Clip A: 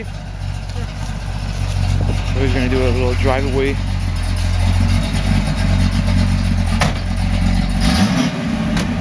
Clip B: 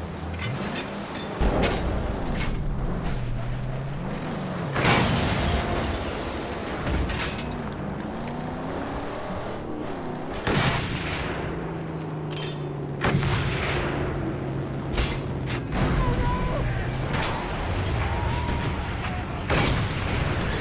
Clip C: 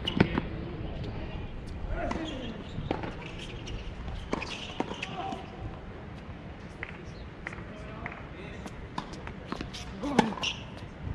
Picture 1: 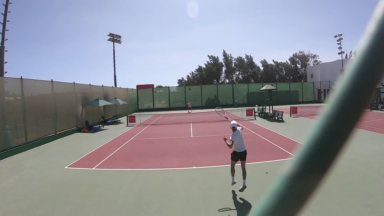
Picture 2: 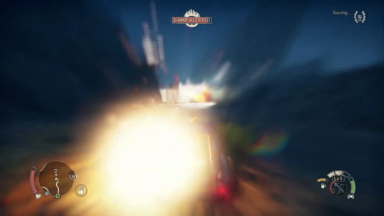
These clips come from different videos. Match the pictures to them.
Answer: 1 C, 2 B